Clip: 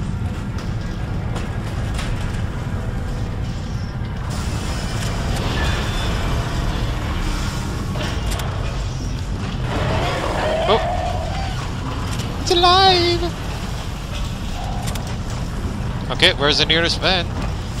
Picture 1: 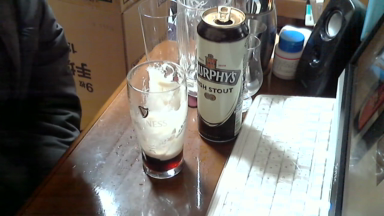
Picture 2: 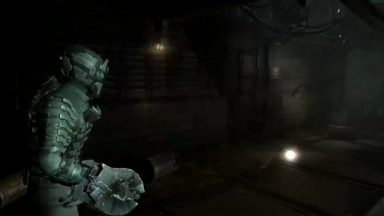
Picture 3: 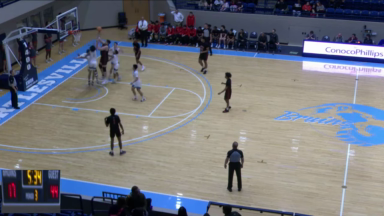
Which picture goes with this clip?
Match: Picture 2